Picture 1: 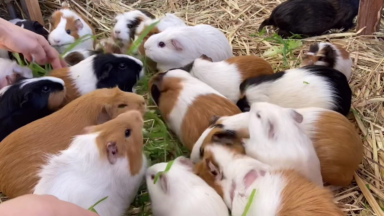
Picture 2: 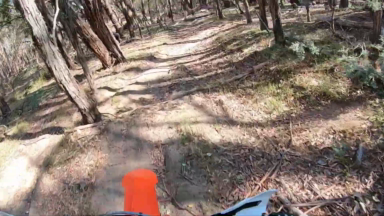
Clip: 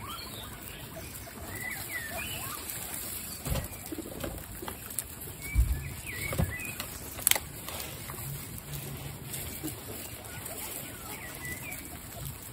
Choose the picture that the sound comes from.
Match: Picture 1